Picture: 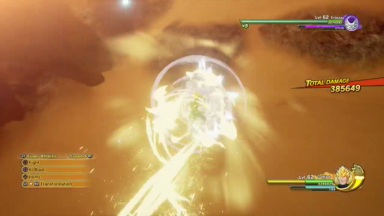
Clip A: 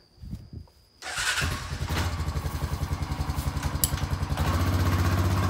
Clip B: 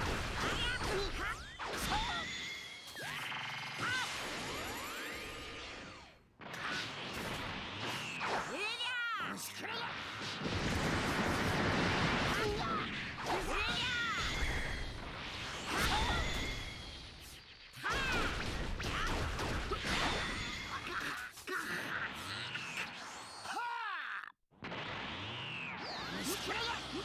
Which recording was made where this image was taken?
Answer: B